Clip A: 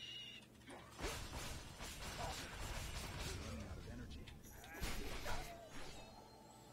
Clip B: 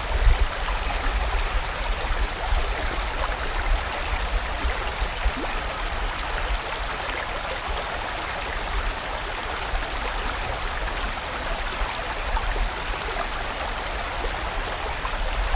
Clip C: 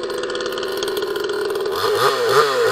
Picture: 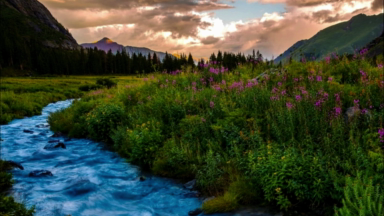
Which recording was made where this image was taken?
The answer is B